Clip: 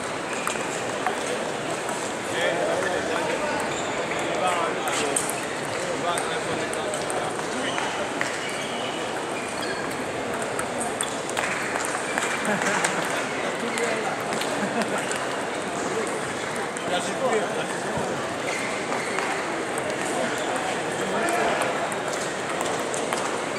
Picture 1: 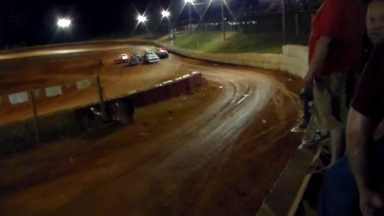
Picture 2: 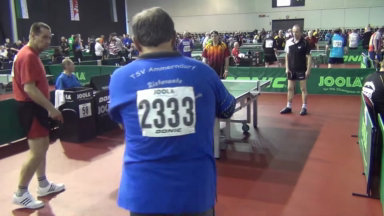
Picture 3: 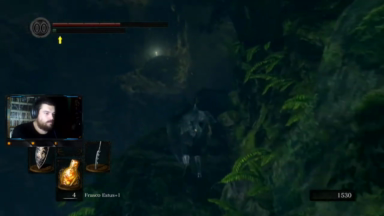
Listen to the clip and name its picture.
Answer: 2